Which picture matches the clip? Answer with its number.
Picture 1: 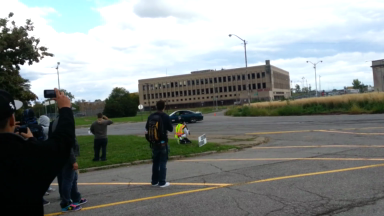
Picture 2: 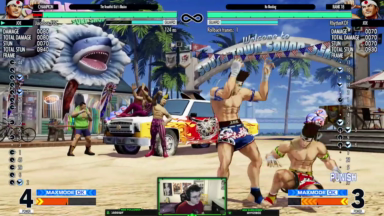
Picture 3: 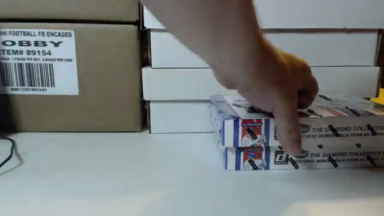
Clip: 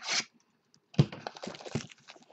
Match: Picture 3